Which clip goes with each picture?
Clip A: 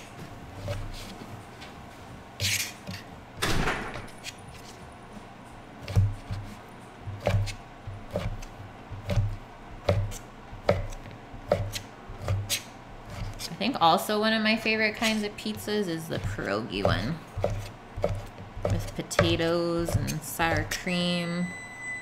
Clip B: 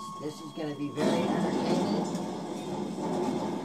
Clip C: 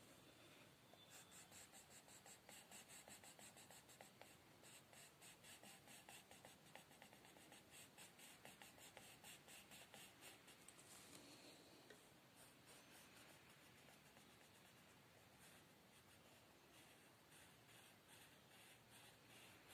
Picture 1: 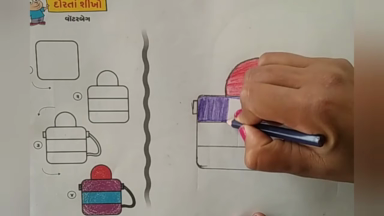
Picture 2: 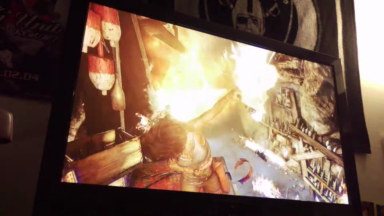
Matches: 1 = C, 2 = B